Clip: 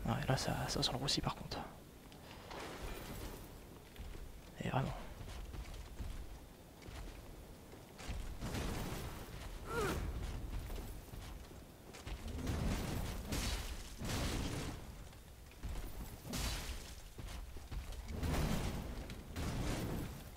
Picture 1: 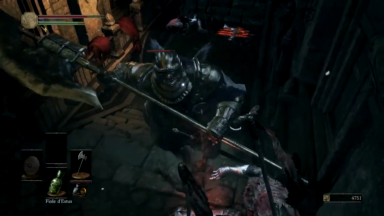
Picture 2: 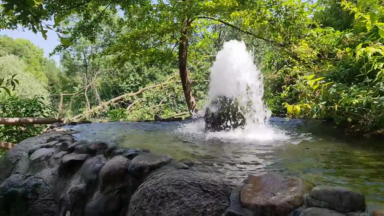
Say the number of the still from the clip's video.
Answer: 1